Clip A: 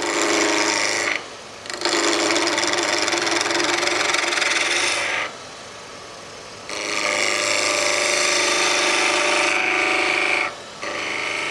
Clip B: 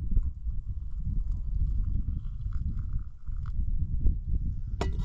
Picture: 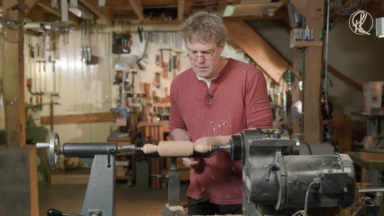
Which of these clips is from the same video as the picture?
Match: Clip A